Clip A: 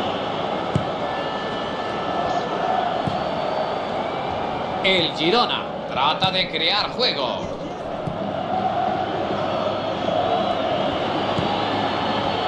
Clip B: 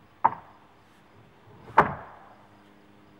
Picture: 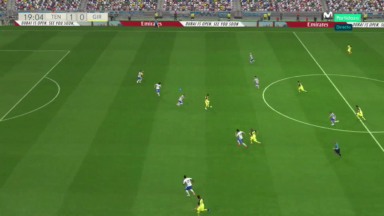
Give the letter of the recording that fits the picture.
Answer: A